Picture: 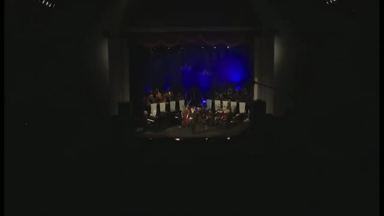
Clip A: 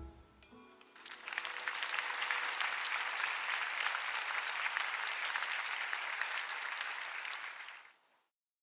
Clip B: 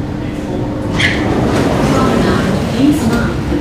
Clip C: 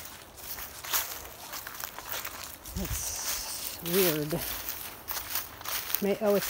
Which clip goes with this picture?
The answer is A